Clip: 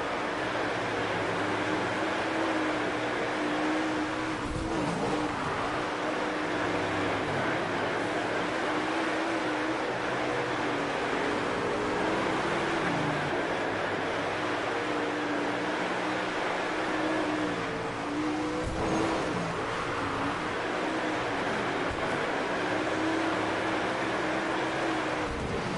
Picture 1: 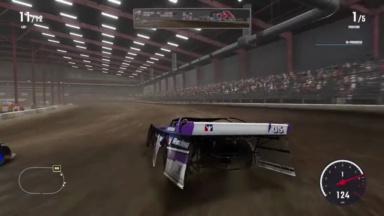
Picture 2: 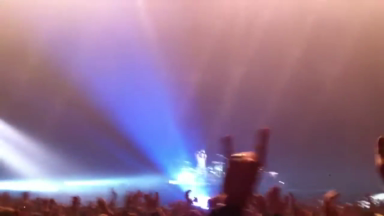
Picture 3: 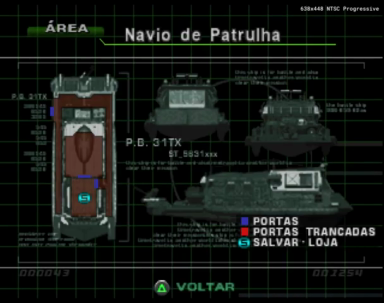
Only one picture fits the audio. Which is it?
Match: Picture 1